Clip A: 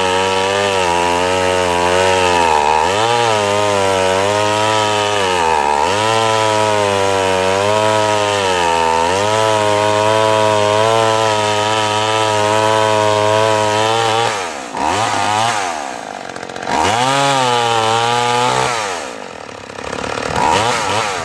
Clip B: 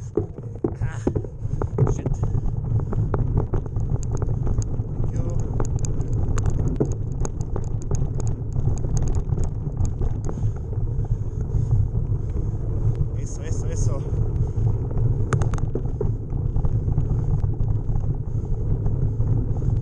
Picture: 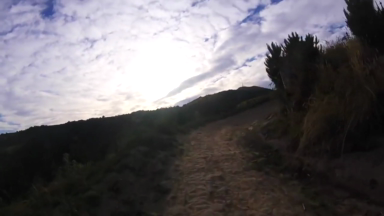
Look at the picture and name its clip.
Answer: B